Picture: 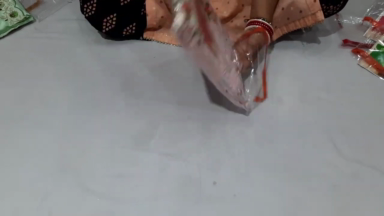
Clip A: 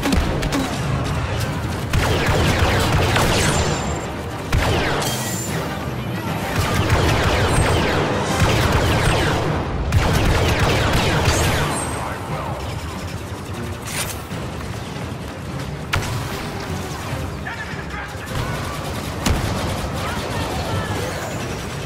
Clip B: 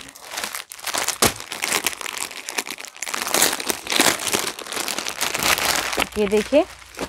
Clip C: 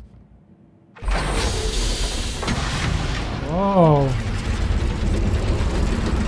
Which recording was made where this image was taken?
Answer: B